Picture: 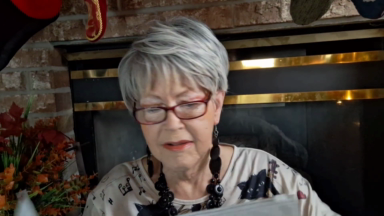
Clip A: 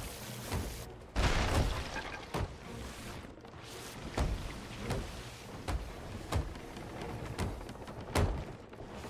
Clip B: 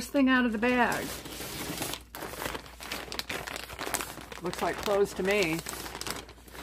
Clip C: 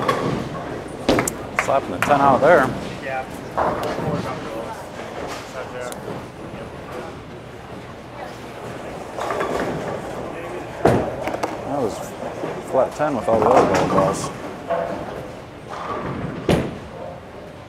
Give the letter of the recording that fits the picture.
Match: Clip B